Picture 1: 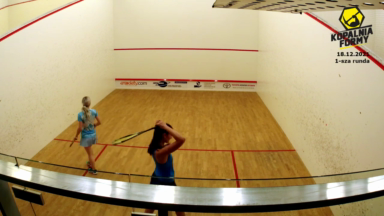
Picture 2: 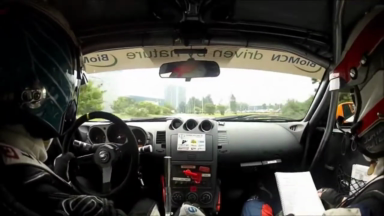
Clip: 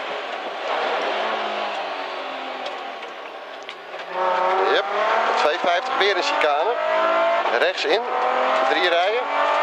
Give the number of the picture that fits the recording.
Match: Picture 2